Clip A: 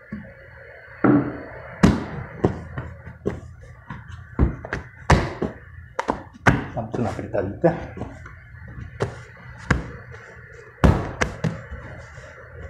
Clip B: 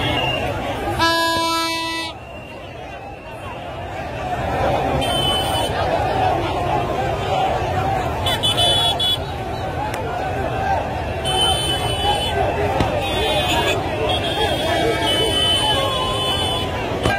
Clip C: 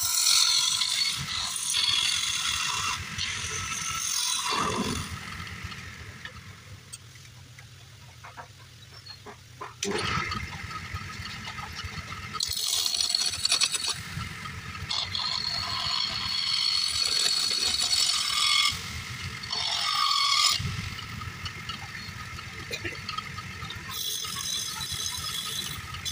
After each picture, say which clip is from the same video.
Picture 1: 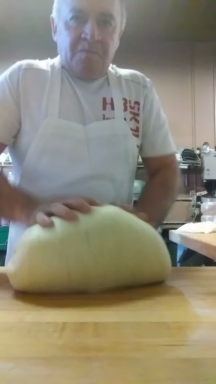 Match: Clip A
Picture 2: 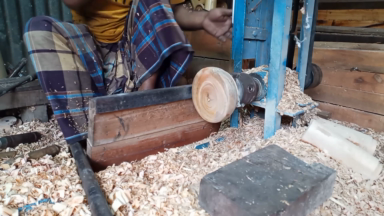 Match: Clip C